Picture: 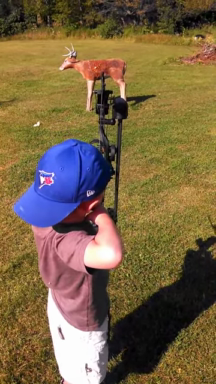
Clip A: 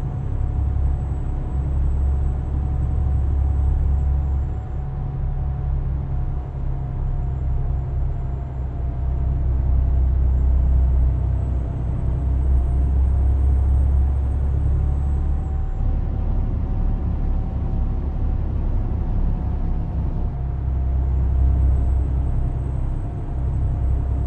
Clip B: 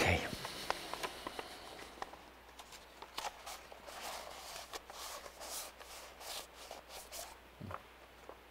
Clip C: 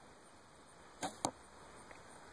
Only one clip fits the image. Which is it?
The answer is C